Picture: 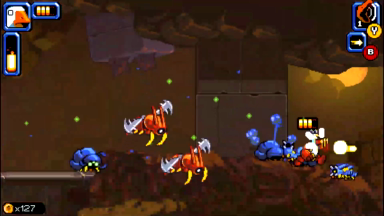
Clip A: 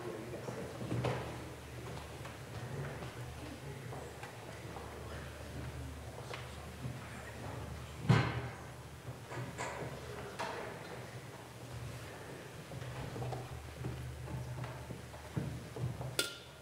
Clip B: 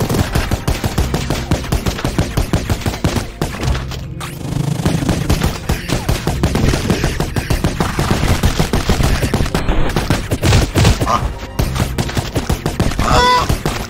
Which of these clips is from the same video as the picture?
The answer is B